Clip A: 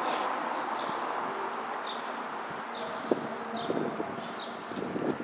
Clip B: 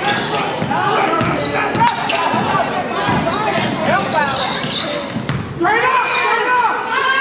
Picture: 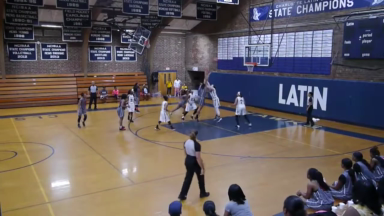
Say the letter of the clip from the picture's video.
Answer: B